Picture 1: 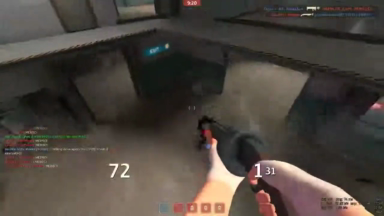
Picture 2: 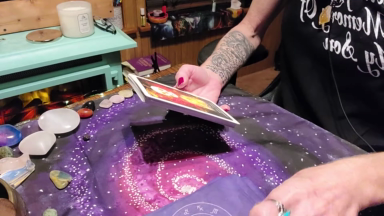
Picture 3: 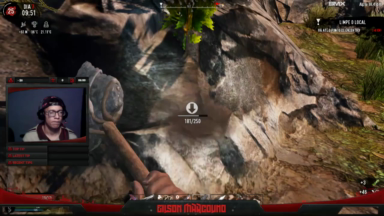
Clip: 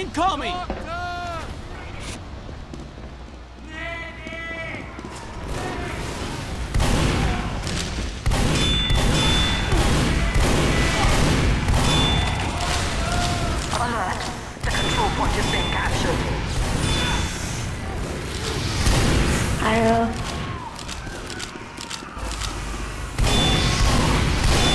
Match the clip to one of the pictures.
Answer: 1